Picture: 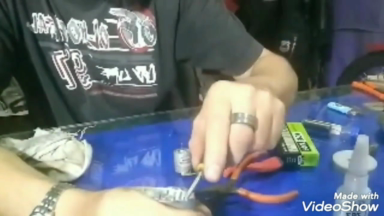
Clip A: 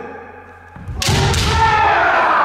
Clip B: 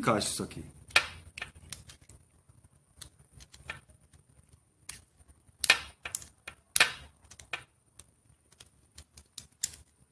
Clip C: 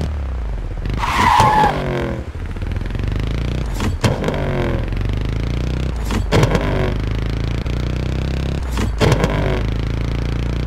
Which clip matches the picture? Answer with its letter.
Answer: B